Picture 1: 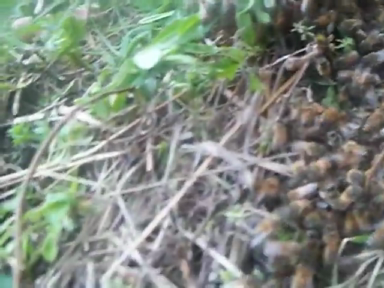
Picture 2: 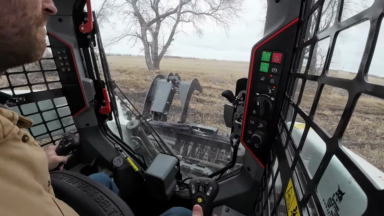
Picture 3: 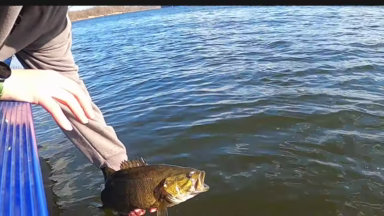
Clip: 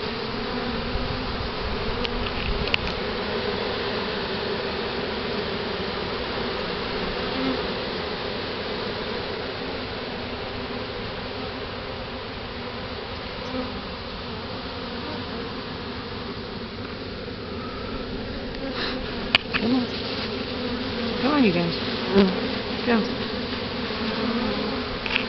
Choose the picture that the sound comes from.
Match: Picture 1